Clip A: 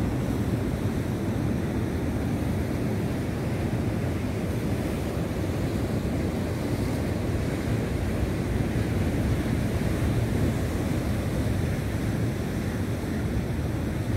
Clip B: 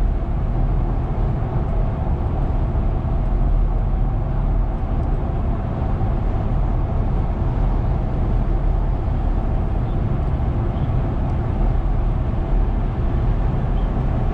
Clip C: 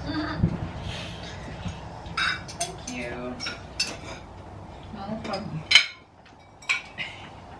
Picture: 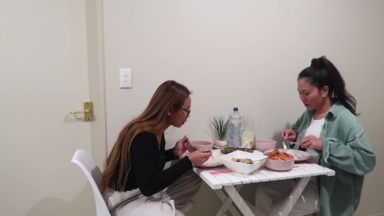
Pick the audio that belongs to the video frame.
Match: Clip C